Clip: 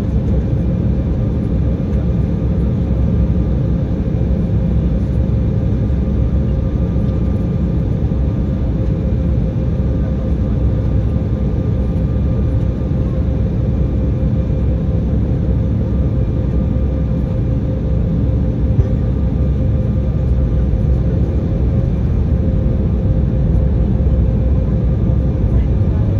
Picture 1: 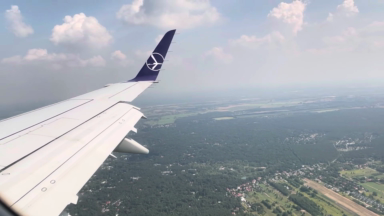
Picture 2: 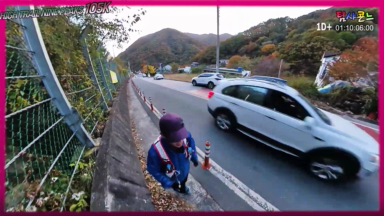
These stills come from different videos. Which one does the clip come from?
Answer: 1